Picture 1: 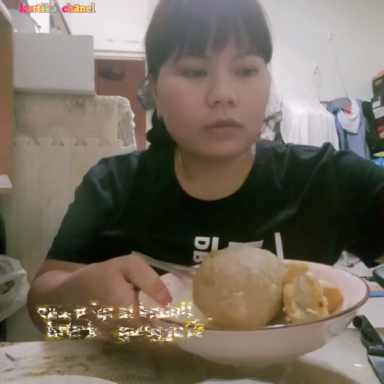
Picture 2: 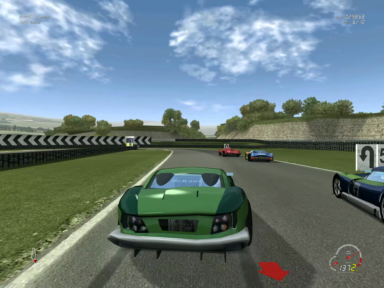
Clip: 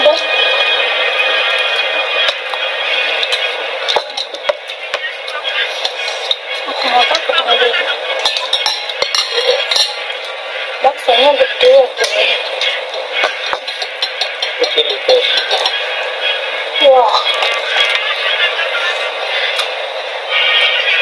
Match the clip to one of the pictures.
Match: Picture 1